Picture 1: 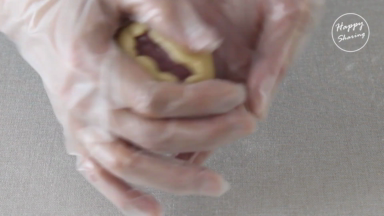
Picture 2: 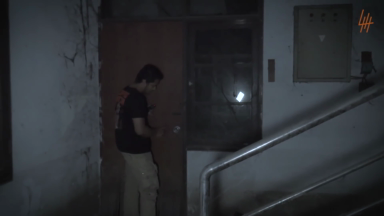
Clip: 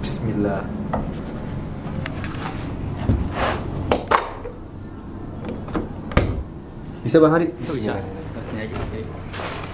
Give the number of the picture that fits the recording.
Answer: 2